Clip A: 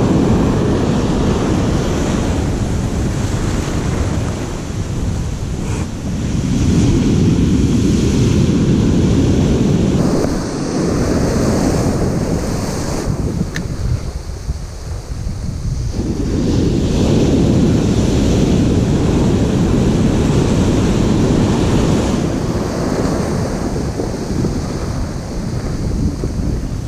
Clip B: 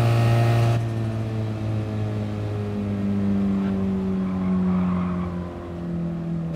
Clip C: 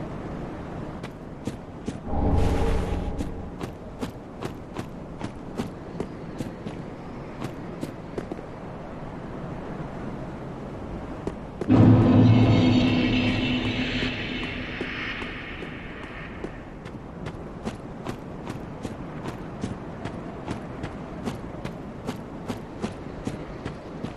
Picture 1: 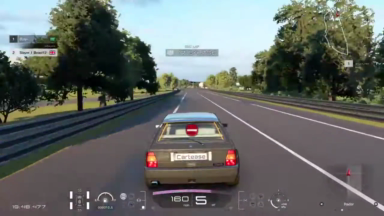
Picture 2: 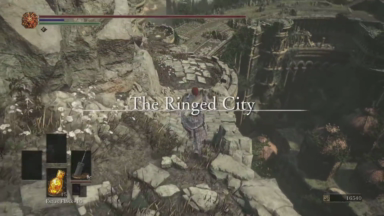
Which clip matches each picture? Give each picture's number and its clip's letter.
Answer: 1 B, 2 C